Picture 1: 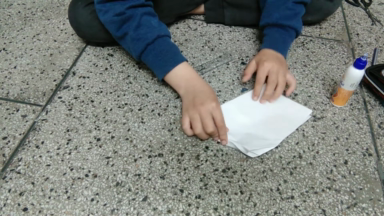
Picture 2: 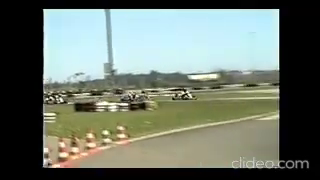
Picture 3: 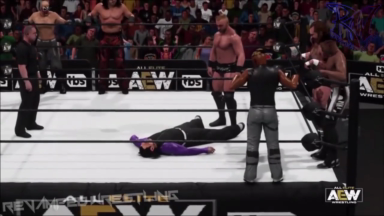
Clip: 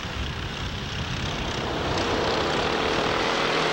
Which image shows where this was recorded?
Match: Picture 2